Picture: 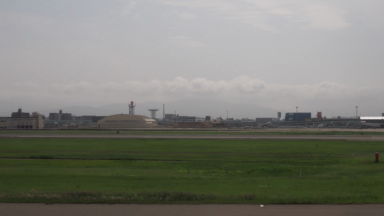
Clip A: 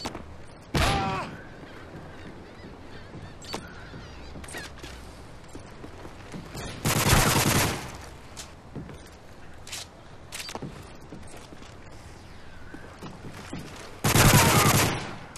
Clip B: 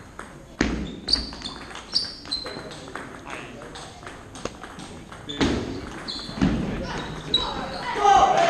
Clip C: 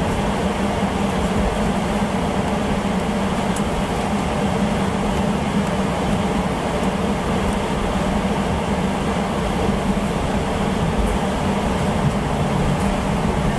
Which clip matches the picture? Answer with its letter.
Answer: C